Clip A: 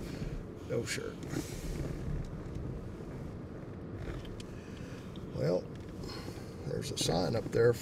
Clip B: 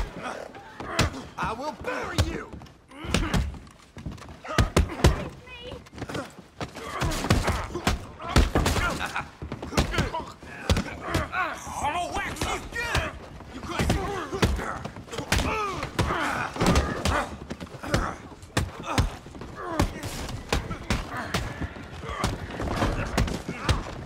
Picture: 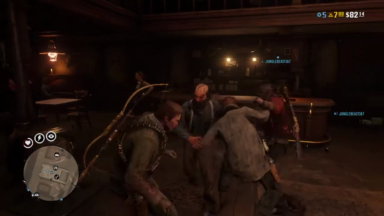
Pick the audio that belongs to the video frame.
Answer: B